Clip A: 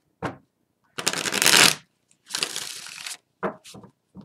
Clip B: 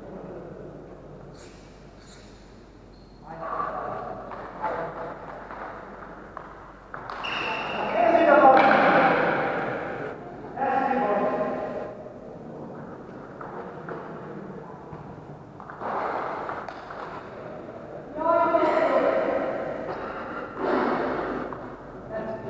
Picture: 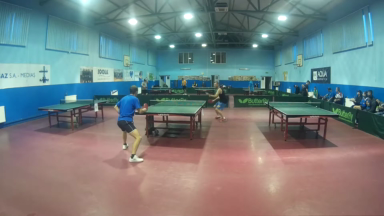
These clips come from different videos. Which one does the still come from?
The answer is B